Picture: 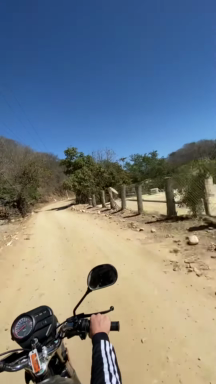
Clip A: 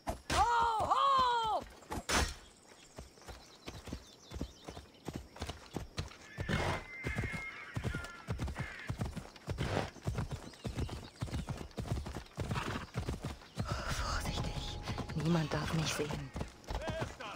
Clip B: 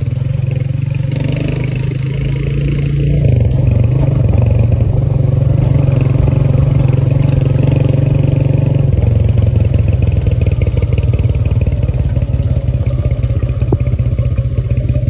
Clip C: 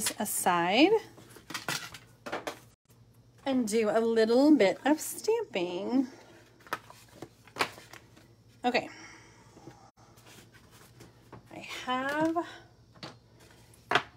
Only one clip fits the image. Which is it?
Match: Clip B